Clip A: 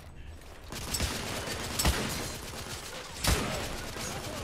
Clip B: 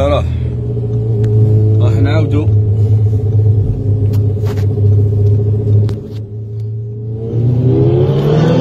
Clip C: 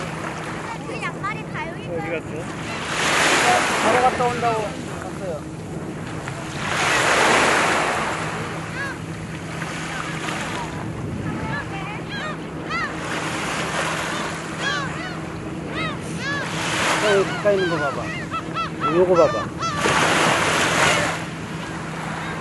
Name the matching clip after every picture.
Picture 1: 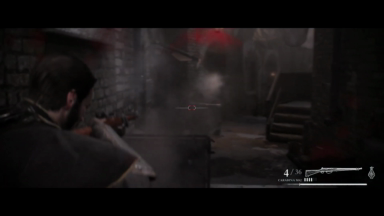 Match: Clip A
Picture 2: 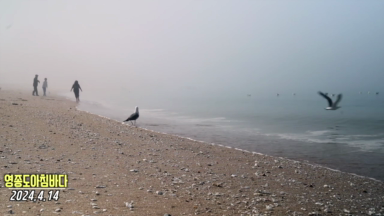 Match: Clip C